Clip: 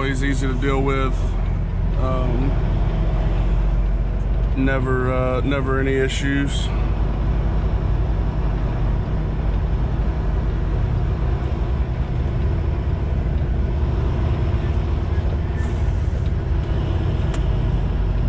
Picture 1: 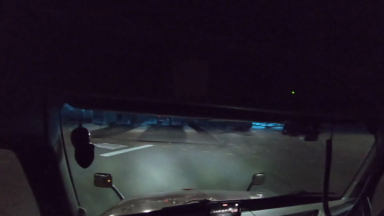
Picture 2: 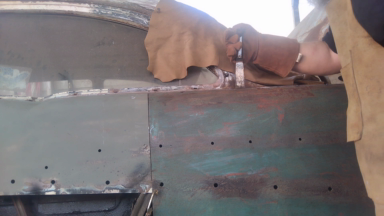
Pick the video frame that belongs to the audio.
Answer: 1